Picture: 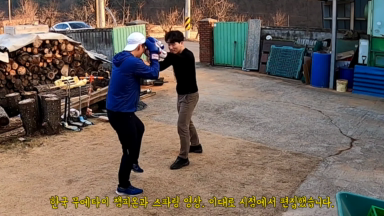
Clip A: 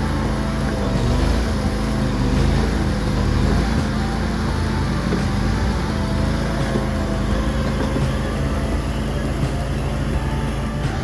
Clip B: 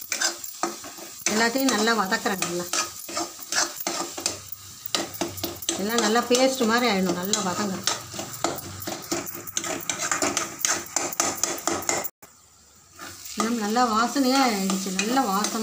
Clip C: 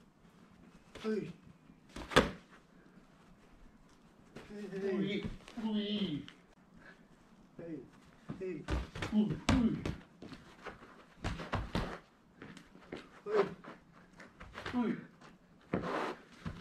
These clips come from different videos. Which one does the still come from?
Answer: C